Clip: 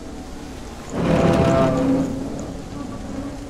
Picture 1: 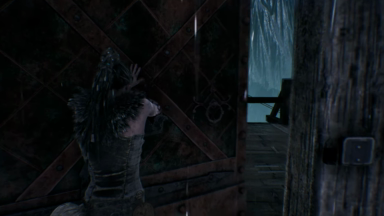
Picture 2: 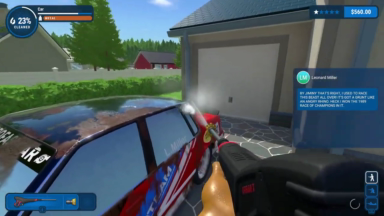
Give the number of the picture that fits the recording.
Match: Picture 1